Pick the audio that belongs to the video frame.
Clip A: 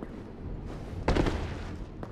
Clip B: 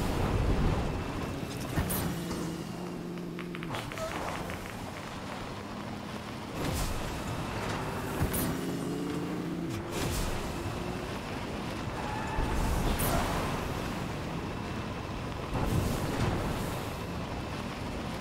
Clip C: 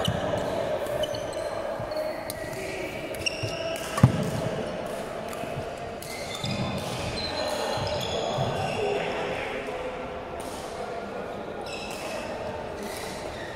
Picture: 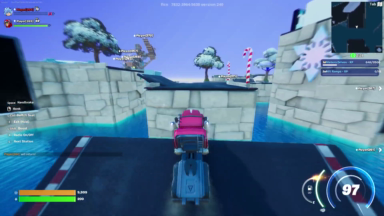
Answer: B